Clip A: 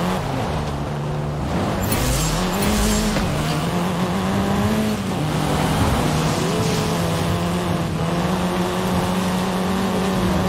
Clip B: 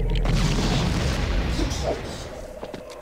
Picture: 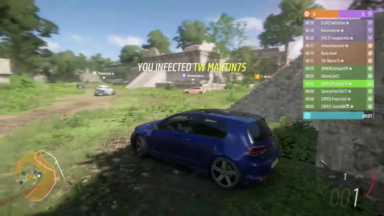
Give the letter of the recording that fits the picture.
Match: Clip A